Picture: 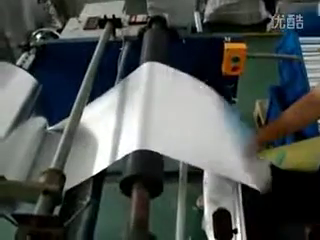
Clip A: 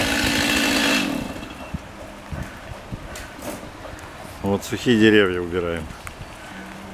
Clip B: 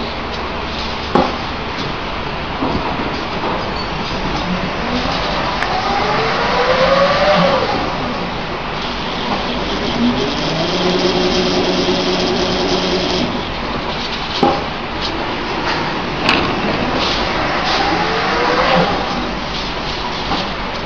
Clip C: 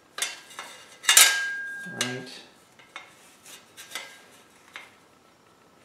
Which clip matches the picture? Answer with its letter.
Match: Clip B